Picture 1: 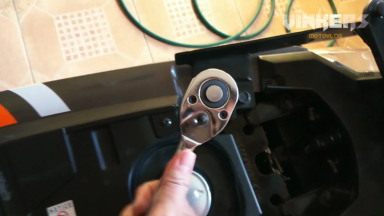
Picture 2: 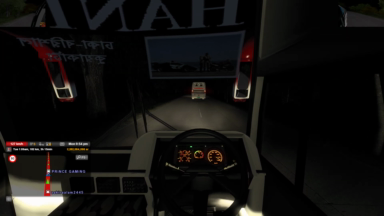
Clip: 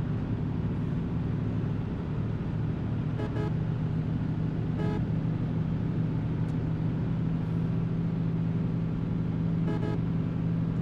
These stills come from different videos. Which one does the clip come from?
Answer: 2